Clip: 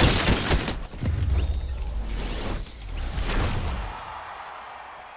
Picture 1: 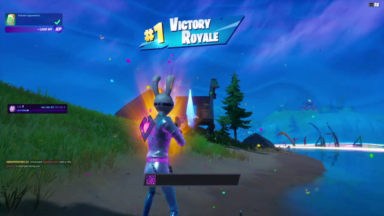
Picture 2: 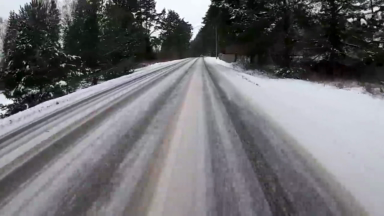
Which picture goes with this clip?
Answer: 1